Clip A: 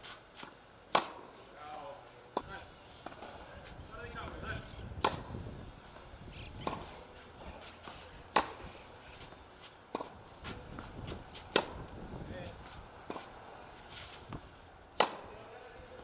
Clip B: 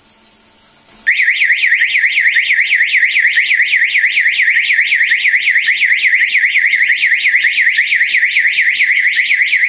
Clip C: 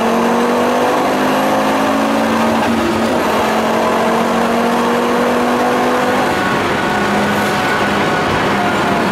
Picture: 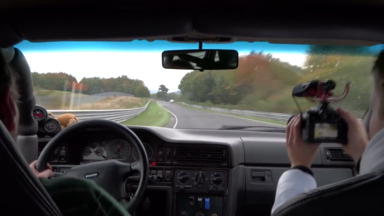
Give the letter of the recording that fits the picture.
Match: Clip C